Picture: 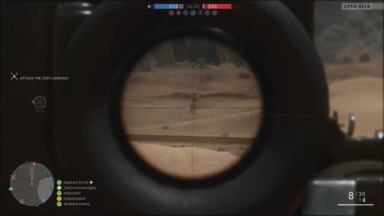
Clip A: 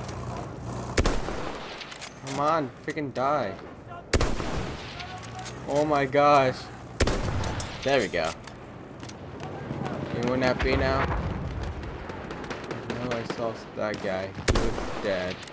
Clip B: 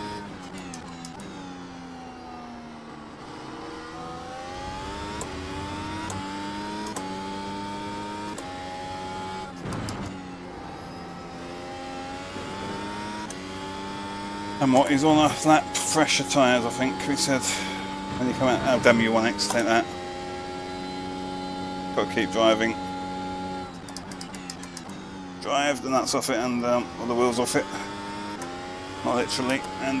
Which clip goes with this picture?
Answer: A